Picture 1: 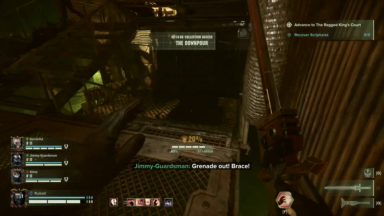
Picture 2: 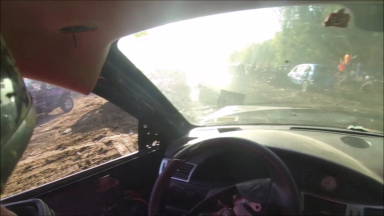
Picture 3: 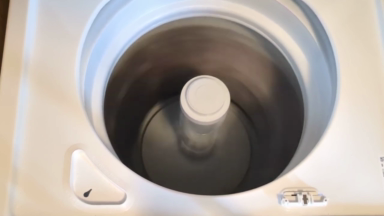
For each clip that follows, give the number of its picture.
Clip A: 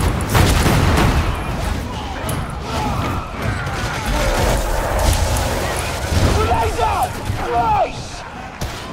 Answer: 1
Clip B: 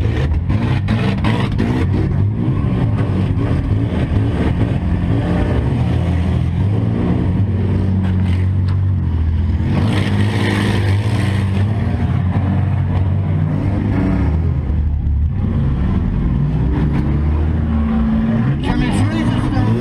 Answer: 2